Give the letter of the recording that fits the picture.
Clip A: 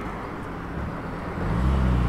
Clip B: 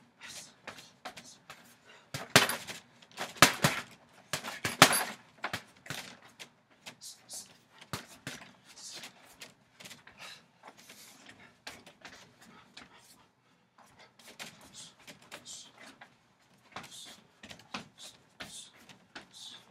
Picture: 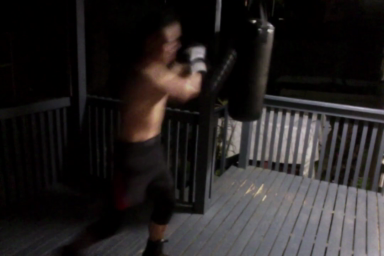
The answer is B